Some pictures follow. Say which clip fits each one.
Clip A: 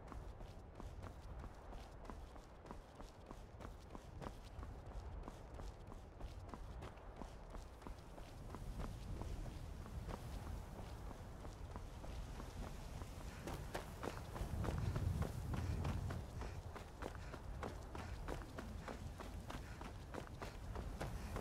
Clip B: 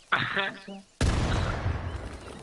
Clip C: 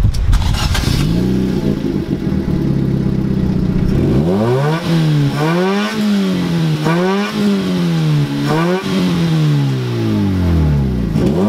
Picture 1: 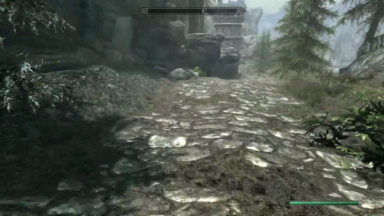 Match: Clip A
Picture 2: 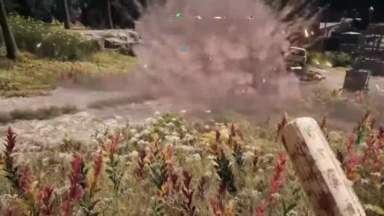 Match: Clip B